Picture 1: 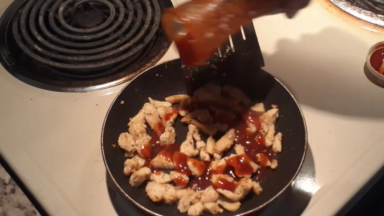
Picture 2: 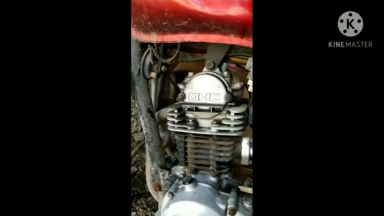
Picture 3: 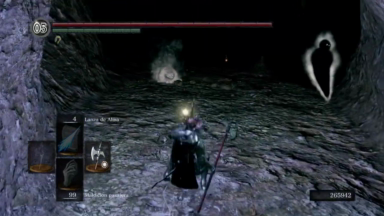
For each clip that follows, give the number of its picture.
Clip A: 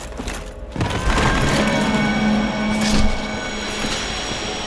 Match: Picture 3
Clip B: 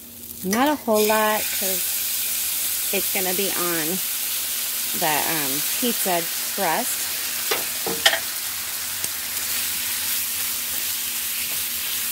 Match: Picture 1